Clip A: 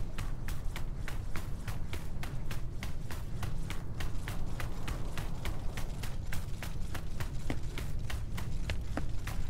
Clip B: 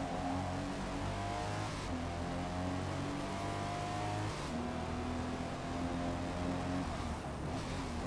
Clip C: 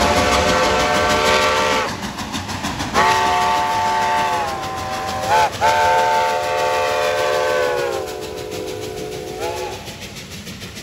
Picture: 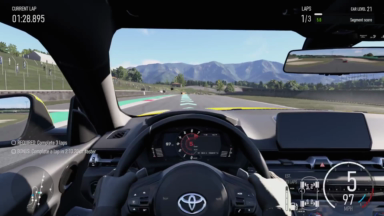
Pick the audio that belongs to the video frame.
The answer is B